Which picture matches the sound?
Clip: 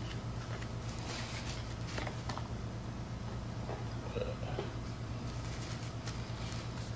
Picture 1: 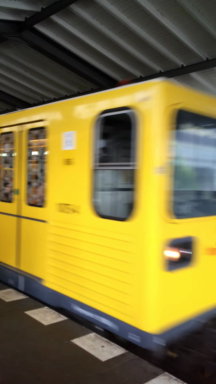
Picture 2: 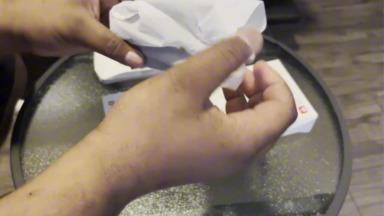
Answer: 2